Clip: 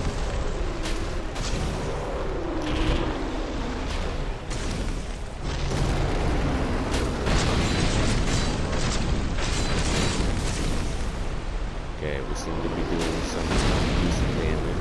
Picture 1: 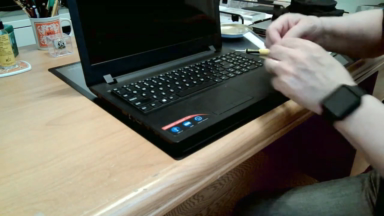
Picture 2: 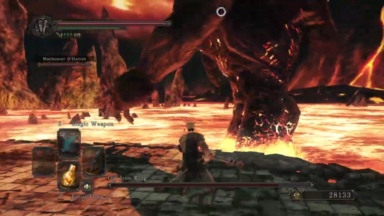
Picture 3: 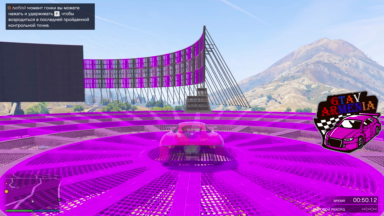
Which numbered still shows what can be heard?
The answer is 2